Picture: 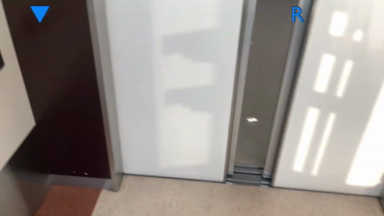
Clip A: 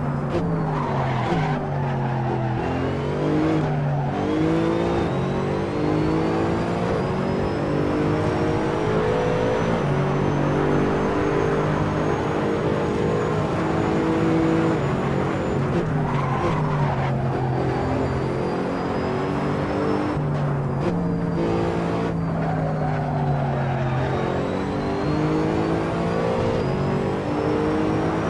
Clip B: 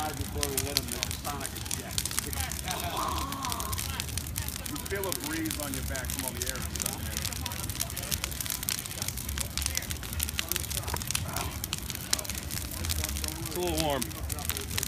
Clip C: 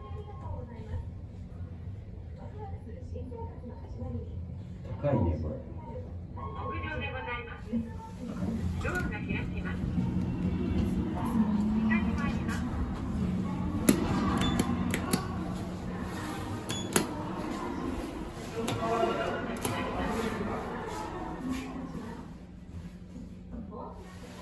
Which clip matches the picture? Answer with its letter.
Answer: C